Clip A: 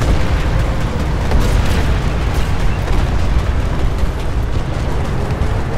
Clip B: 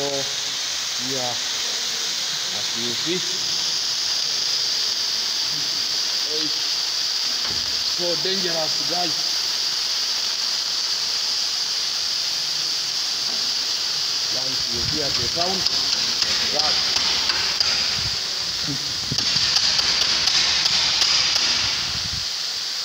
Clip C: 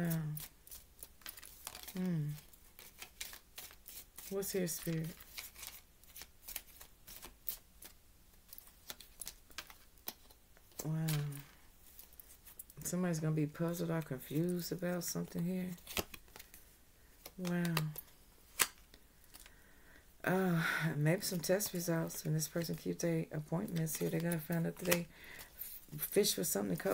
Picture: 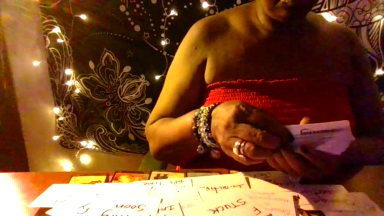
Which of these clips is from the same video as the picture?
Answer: C